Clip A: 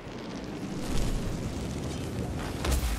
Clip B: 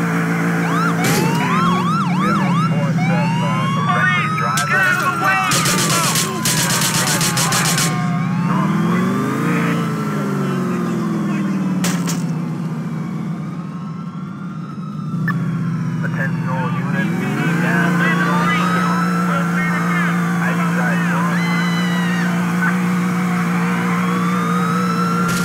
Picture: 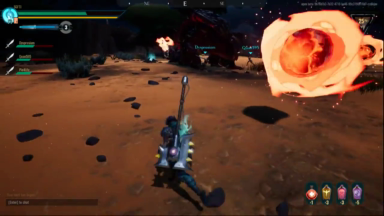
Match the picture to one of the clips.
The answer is A